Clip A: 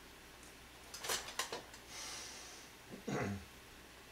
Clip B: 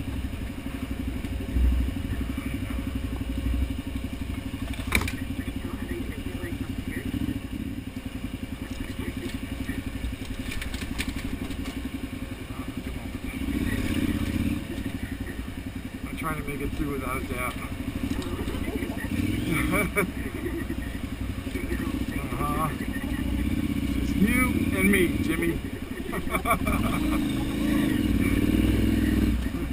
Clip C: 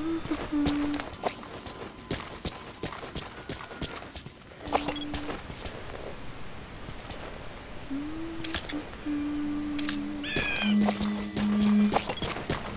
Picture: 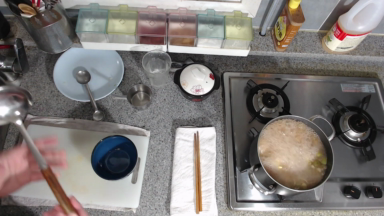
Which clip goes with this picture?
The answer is A